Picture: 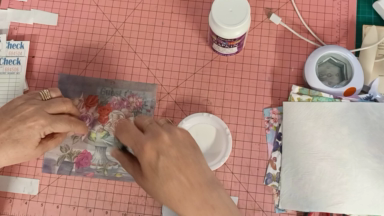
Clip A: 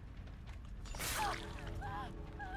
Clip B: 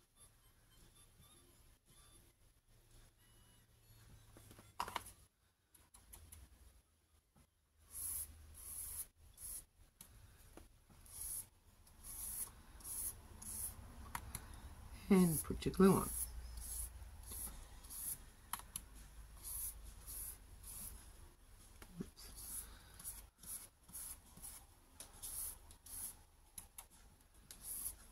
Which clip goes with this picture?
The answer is B